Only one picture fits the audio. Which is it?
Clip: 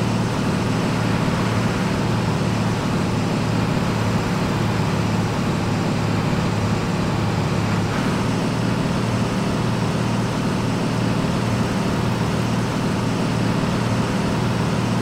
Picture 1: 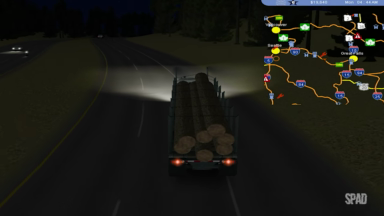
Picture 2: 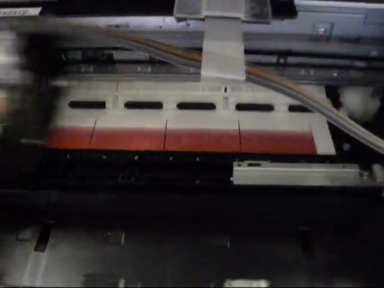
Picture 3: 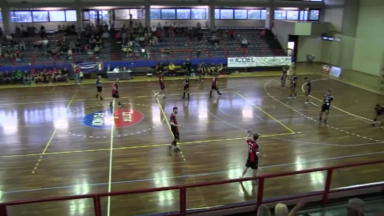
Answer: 1